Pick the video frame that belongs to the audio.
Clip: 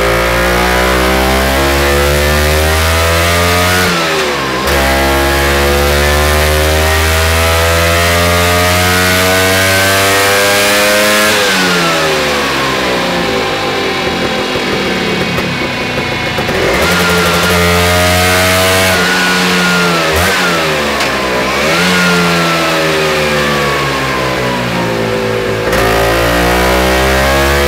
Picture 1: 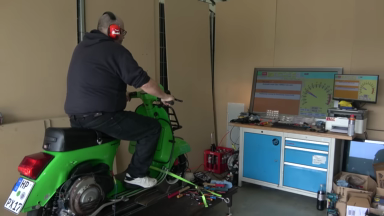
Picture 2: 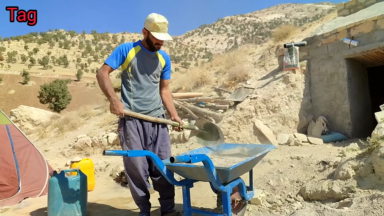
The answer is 1